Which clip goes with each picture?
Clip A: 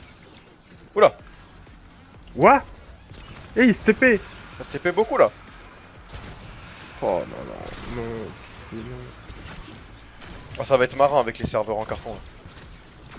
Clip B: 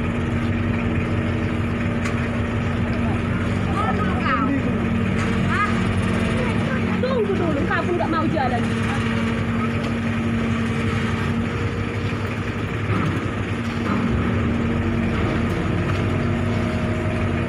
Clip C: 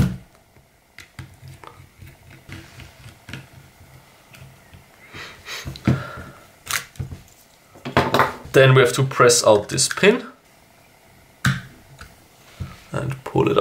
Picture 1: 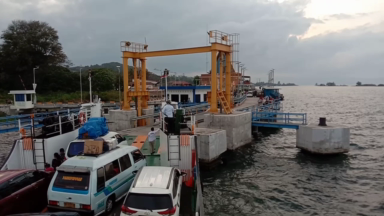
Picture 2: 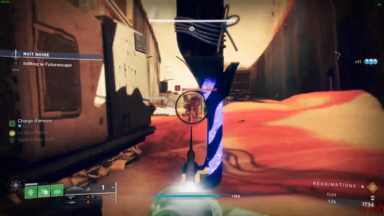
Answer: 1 B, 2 A